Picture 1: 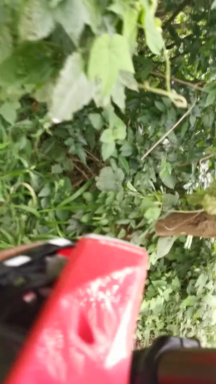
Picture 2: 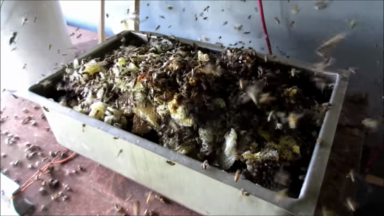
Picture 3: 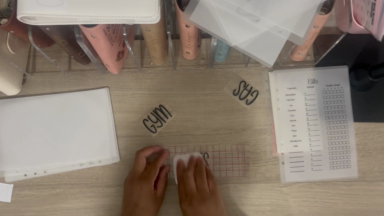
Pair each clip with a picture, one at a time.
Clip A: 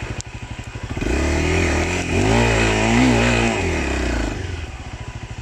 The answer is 1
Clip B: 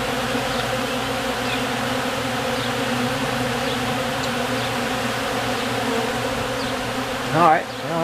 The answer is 2